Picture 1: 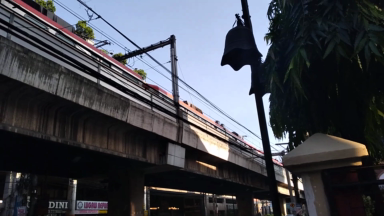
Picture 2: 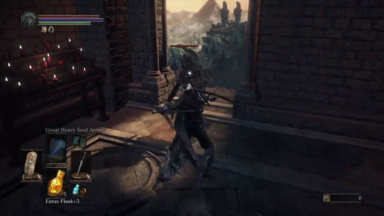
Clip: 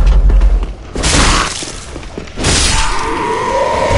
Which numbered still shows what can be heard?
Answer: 2